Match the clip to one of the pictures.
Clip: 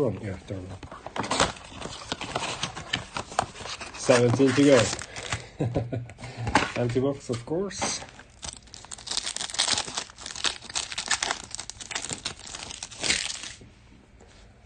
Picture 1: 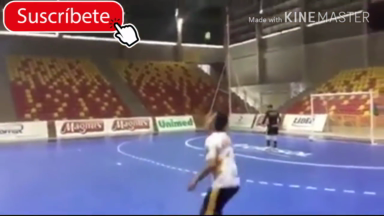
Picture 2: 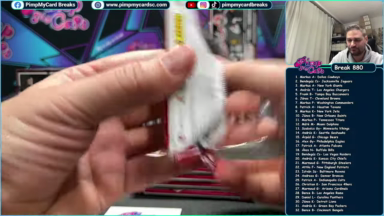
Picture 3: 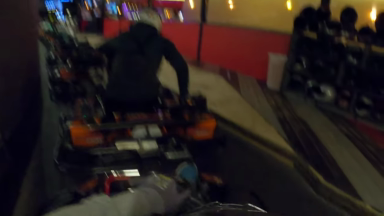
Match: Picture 2